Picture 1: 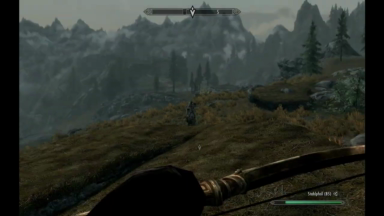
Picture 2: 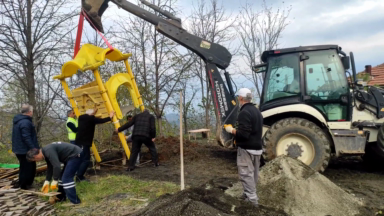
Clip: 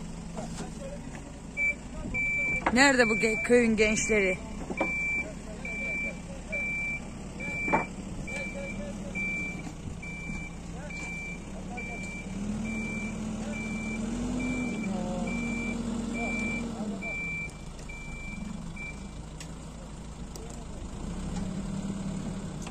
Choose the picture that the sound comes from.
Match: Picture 2